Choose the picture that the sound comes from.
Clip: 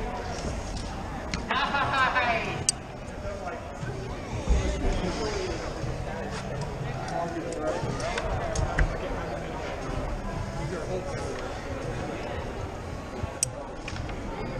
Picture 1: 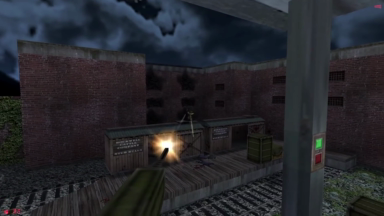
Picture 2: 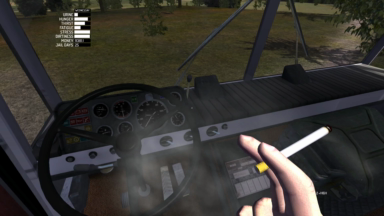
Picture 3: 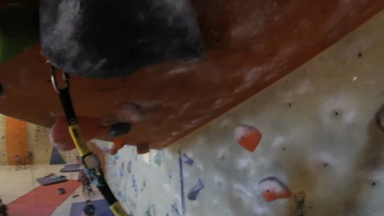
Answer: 3